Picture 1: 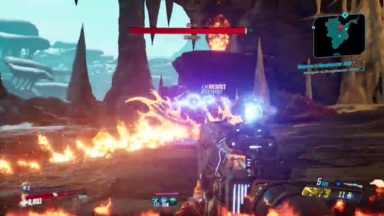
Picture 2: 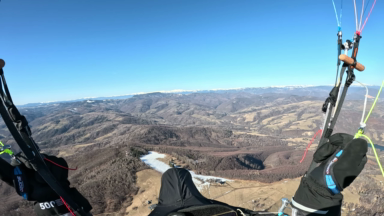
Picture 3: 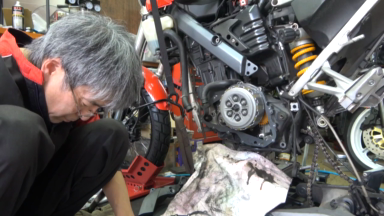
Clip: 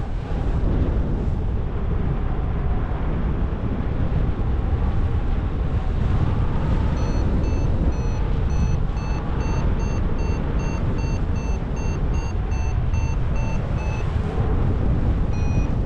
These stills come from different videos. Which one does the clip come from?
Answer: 2